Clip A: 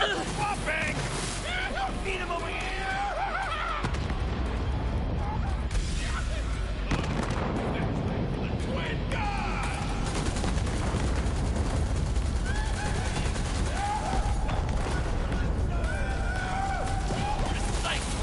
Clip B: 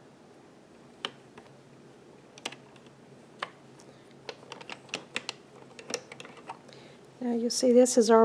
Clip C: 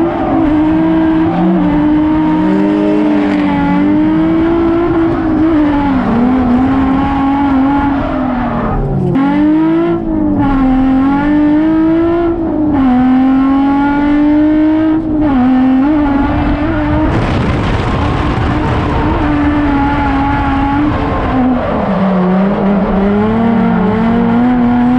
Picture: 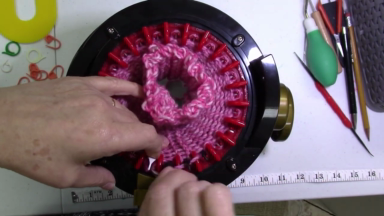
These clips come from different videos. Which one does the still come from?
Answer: B